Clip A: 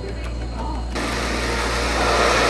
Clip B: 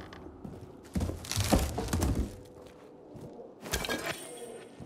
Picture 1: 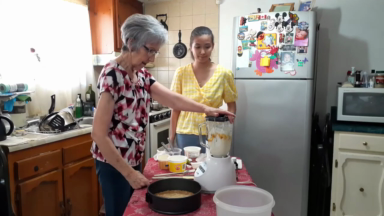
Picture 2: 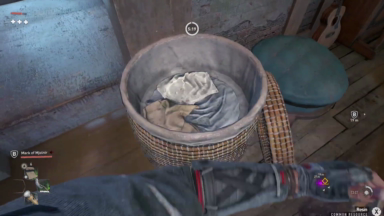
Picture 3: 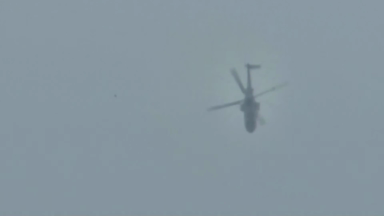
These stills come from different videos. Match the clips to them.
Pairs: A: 1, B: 2